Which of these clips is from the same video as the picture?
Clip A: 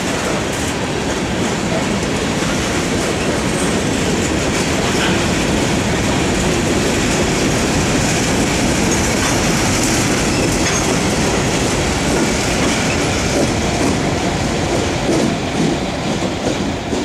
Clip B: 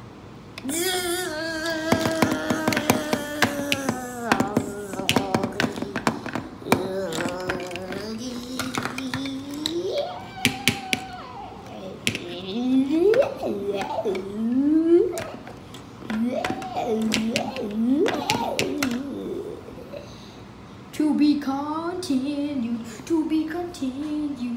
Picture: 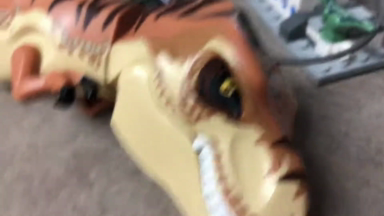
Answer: B